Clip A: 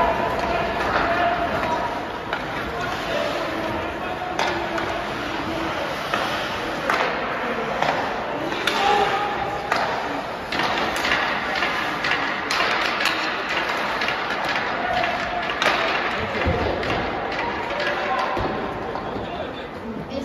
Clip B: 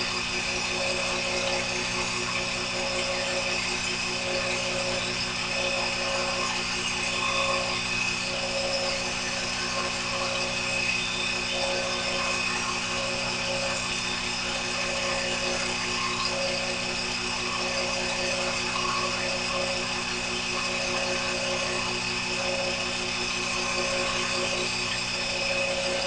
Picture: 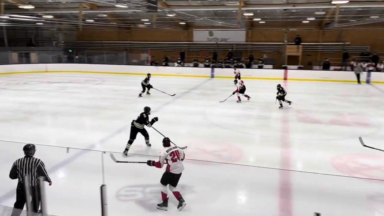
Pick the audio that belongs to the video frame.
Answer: A